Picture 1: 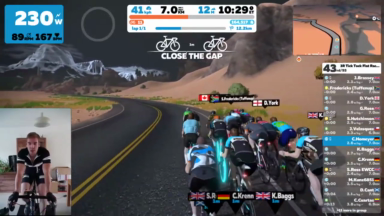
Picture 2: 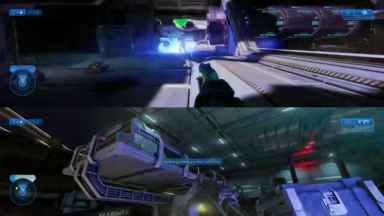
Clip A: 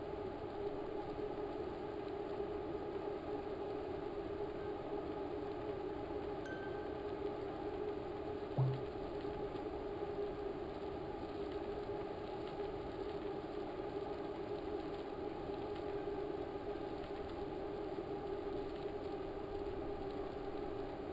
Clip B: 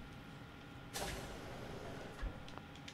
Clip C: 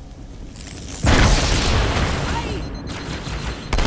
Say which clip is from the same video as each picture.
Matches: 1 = A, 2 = C